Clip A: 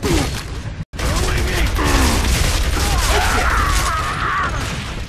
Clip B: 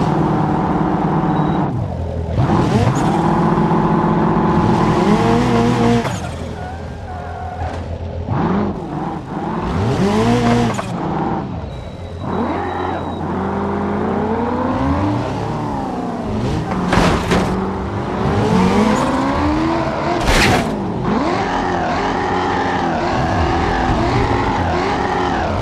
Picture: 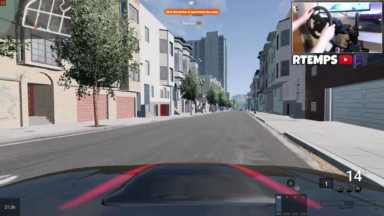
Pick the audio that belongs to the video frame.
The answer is B